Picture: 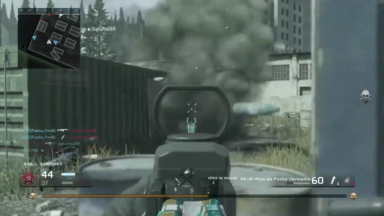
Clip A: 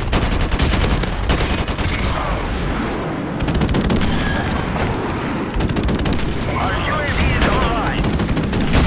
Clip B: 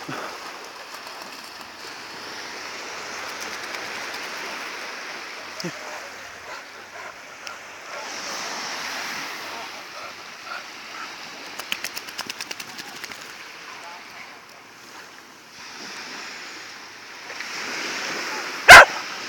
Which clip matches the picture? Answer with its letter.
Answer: A